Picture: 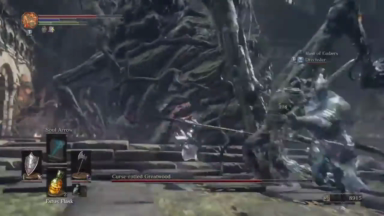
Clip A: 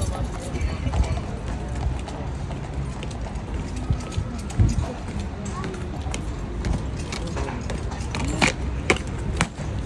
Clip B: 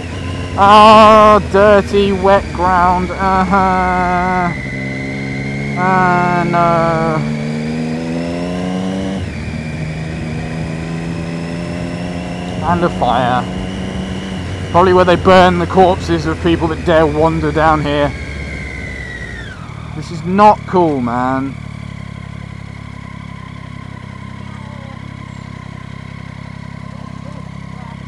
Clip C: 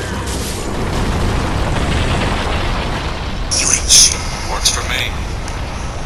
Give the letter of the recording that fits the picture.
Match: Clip C